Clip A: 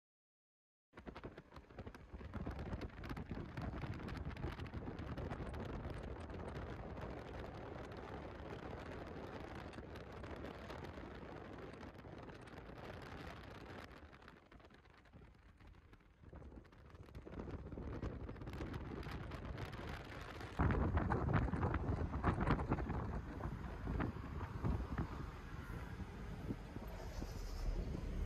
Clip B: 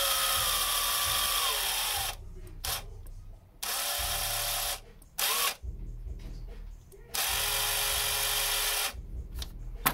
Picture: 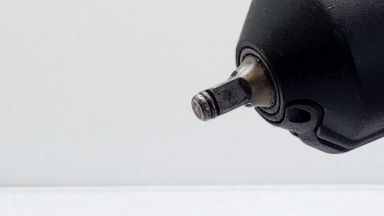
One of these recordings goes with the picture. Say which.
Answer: B